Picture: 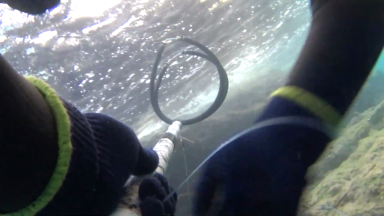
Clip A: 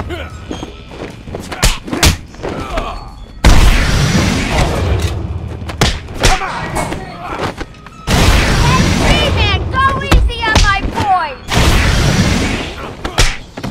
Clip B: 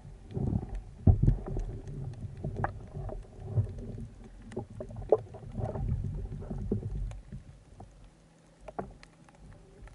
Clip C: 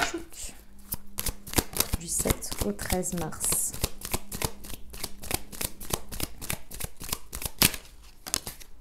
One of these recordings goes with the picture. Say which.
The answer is B